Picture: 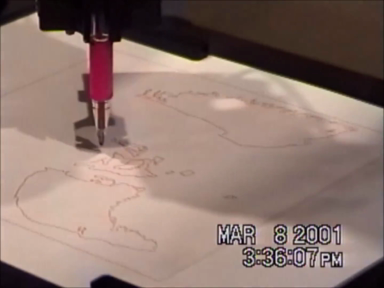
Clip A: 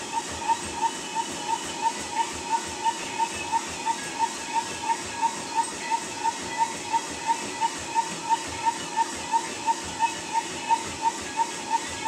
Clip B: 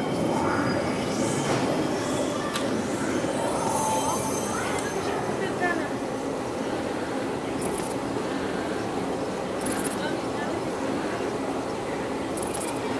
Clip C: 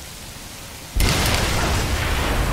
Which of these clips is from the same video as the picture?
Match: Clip B